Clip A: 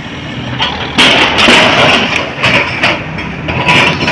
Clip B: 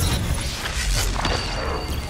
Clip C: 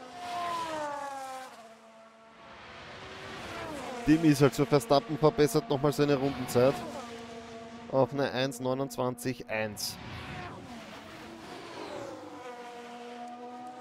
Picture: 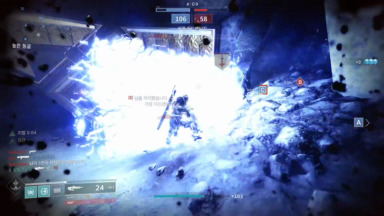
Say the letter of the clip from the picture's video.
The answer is B